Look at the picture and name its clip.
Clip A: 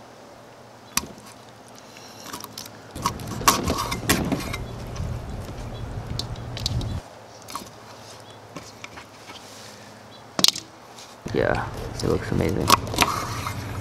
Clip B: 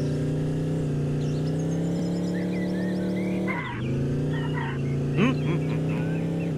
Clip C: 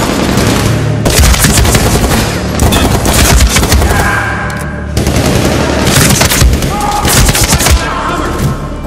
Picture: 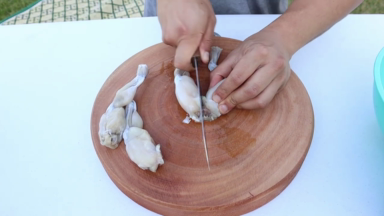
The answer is A